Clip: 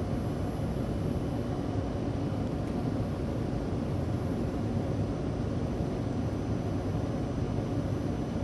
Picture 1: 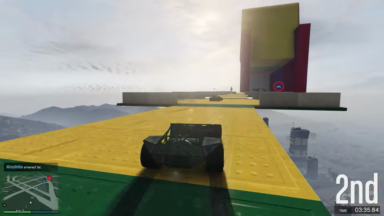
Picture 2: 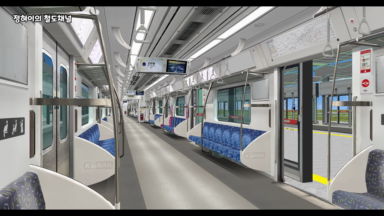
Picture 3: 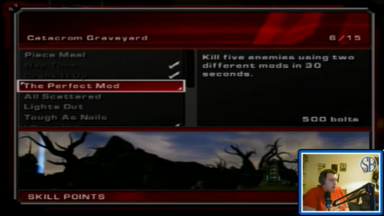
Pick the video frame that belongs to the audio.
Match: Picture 2